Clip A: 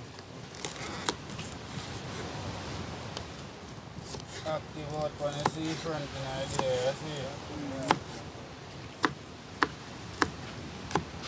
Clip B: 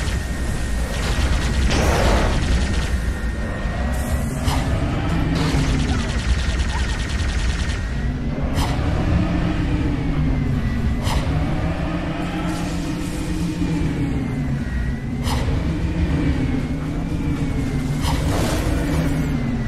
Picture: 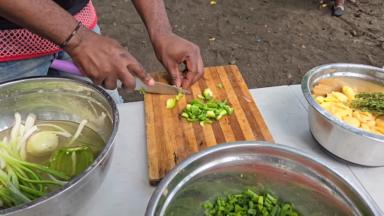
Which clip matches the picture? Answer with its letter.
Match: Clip A